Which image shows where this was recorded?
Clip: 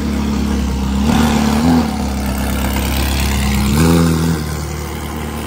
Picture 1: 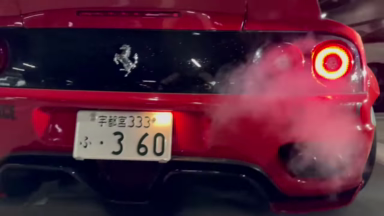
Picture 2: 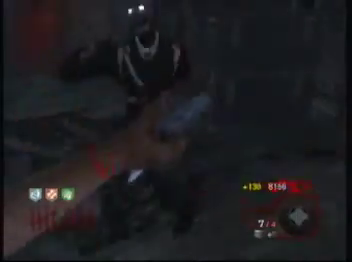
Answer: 1